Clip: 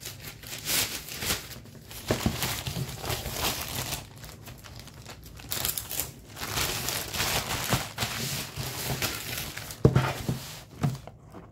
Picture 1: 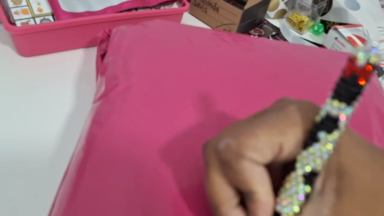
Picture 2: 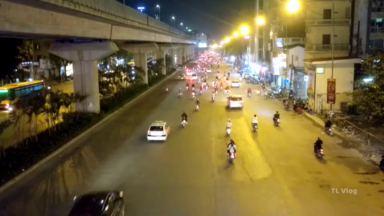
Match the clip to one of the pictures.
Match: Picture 1